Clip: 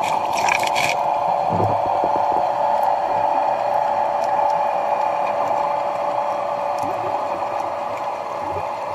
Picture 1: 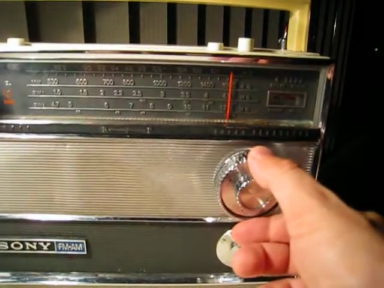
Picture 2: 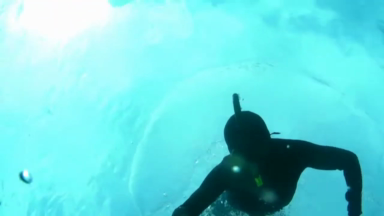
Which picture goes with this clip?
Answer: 2